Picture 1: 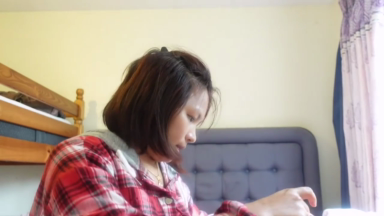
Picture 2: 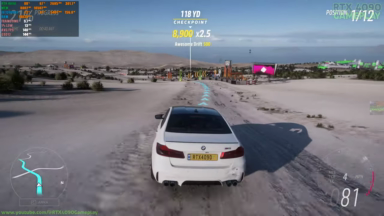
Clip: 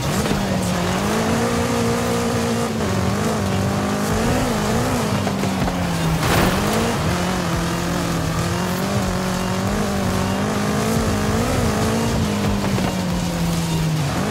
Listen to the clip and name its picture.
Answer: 2